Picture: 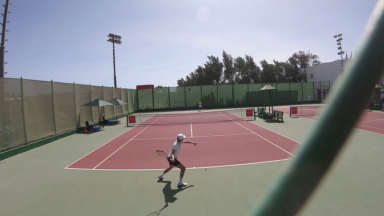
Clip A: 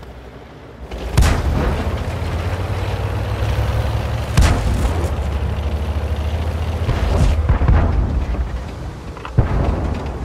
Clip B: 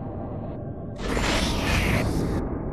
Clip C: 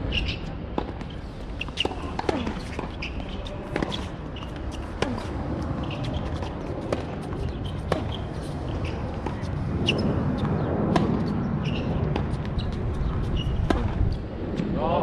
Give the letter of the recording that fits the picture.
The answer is C